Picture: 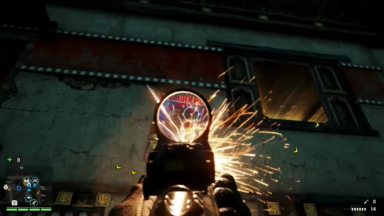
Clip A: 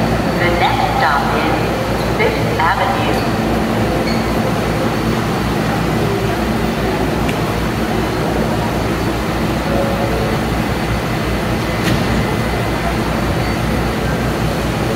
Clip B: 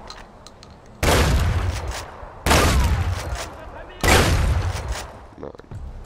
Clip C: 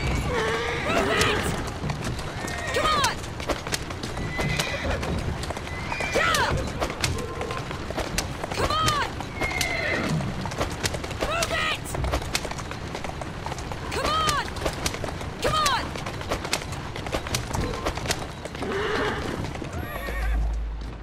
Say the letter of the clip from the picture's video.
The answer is B